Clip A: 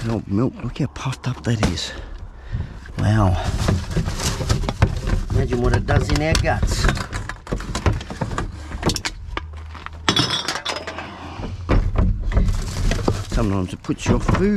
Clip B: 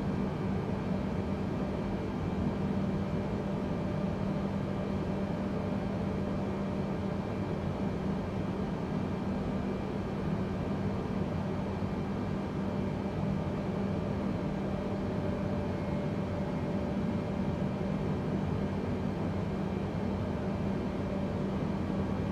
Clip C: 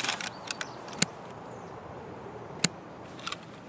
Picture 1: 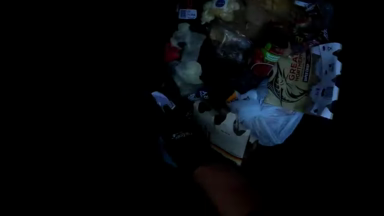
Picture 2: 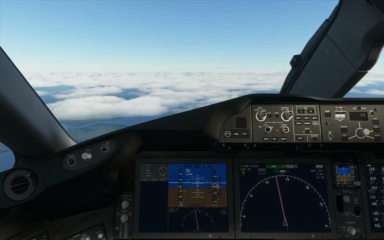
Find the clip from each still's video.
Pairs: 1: A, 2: B